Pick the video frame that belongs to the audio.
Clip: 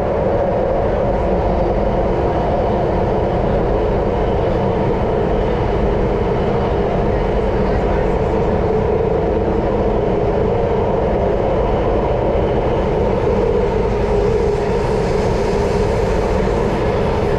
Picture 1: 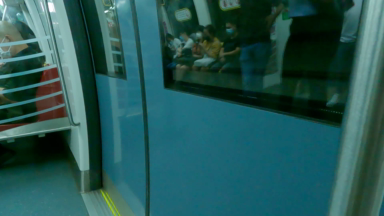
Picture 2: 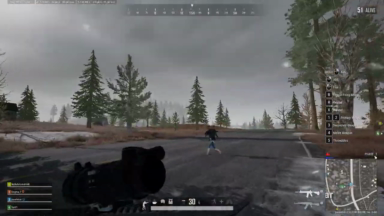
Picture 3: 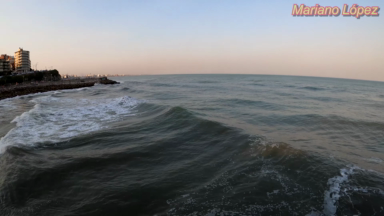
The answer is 1